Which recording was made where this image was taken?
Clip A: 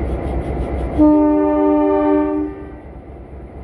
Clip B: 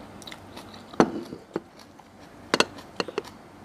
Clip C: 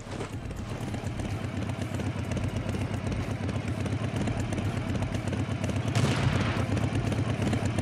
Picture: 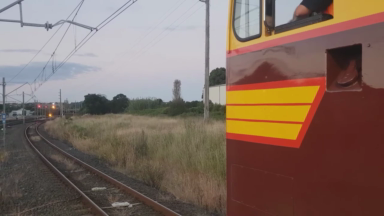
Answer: A